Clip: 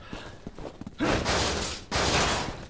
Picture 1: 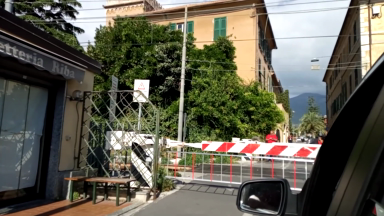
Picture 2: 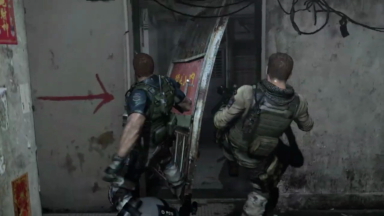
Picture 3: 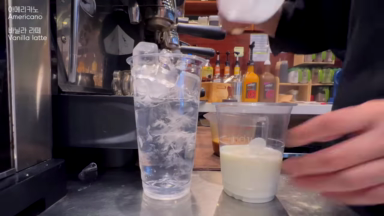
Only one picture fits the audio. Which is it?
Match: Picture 2